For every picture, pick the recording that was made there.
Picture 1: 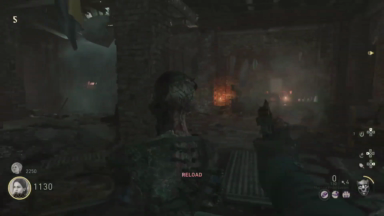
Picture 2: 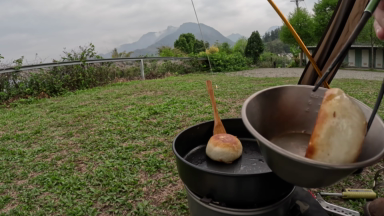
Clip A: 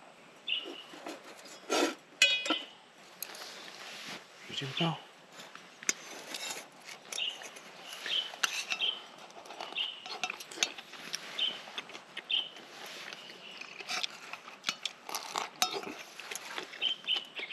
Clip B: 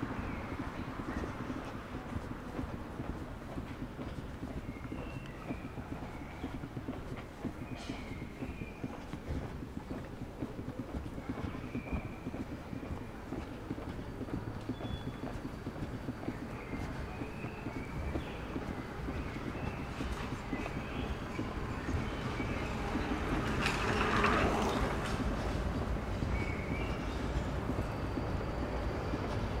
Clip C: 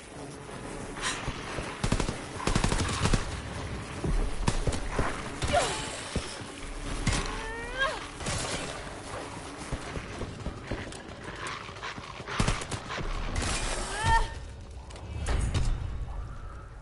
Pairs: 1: C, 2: A